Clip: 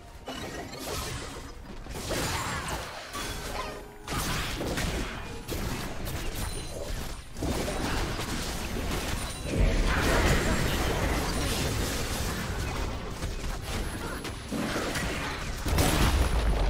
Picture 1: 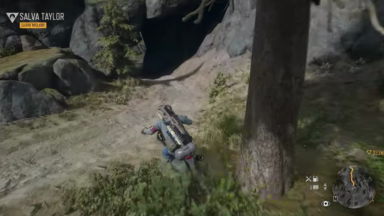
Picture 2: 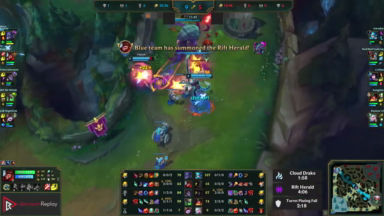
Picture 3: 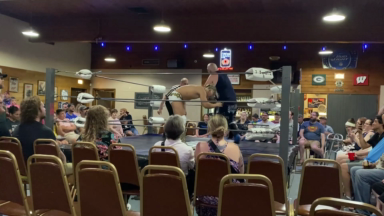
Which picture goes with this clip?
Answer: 2